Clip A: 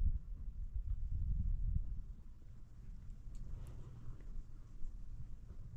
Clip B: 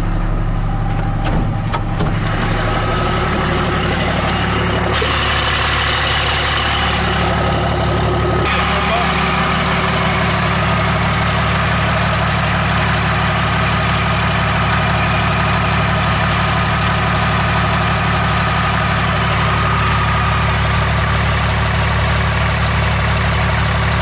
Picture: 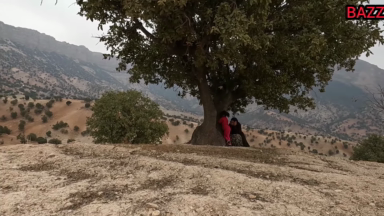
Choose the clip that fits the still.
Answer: A